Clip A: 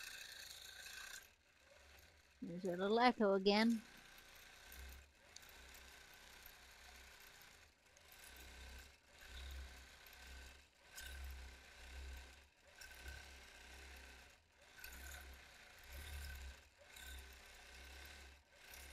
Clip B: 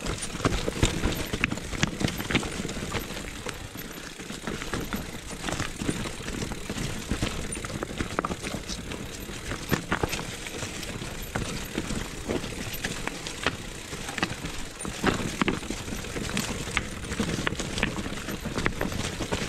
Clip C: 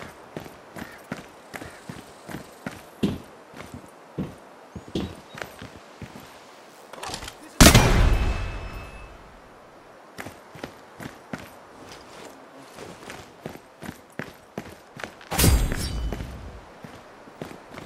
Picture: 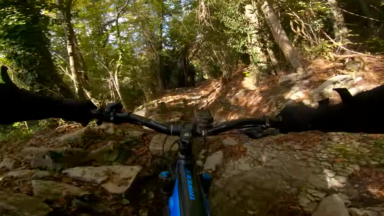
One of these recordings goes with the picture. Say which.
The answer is B